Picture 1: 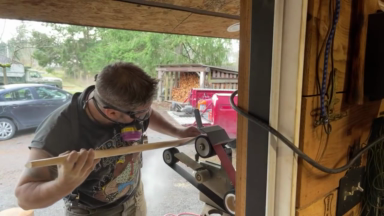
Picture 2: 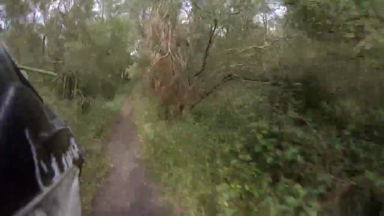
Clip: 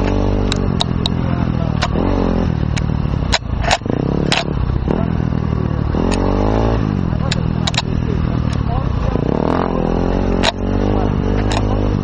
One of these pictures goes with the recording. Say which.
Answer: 2